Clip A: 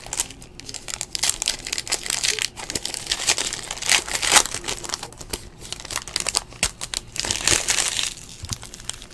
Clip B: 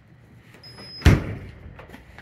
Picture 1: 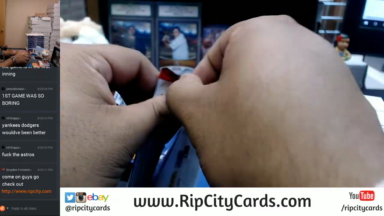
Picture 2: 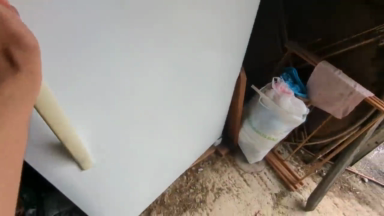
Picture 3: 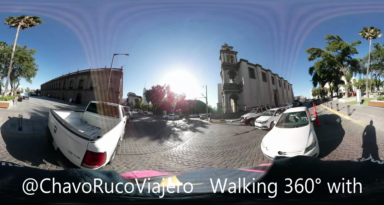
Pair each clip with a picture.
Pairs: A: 1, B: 2